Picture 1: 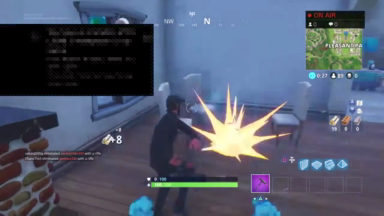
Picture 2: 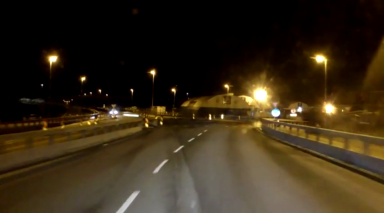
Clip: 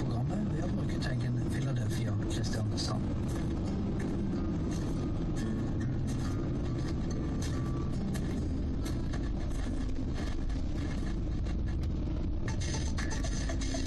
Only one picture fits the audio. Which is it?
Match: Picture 2